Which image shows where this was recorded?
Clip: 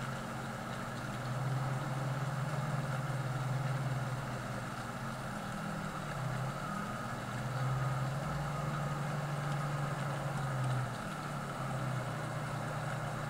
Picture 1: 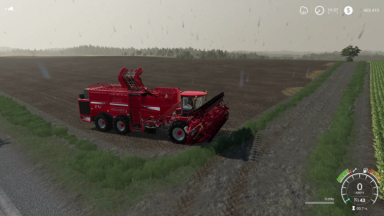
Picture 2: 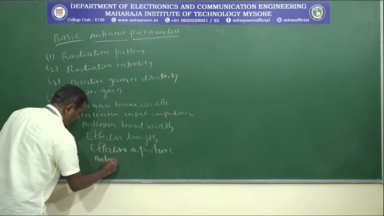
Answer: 1